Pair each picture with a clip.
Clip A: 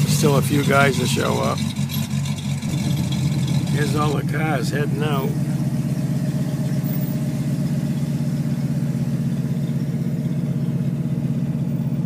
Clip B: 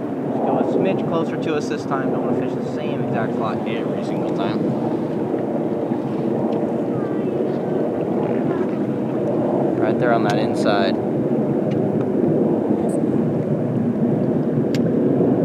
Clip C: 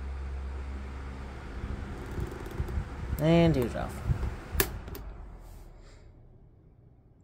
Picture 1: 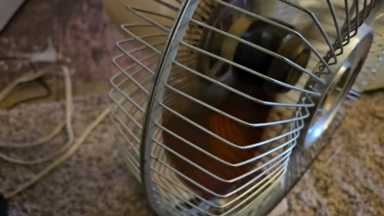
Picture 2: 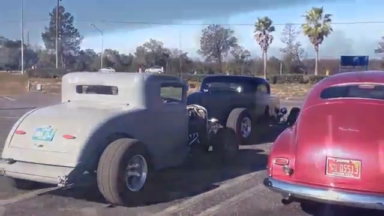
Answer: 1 C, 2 A